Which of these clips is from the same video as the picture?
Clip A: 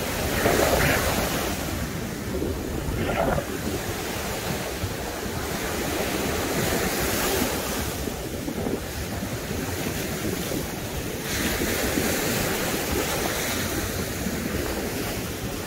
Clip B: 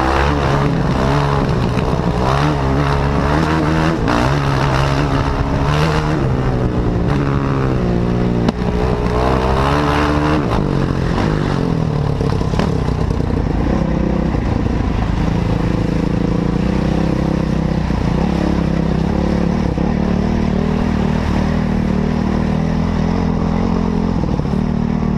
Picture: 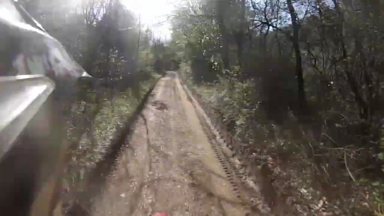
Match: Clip B